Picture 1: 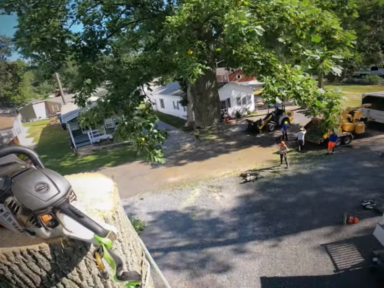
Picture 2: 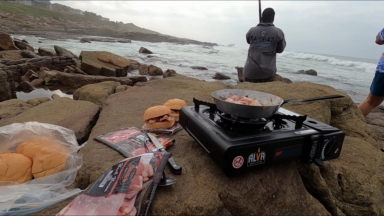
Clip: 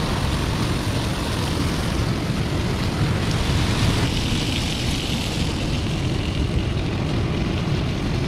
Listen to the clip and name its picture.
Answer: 2